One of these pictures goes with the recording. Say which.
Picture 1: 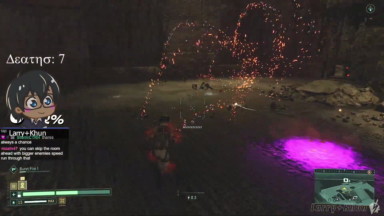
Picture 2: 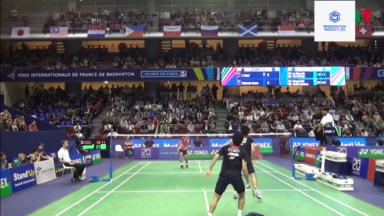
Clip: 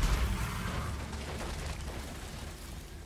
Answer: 1